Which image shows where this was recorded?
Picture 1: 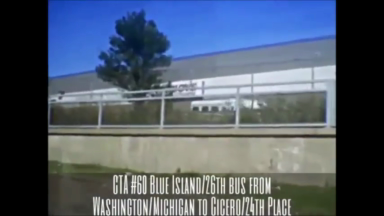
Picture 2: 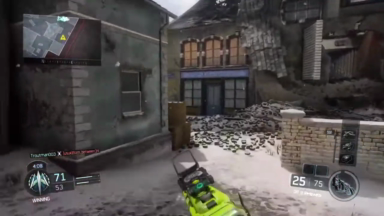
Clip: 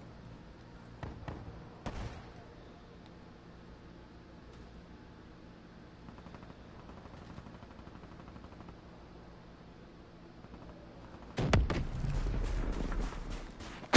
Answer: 2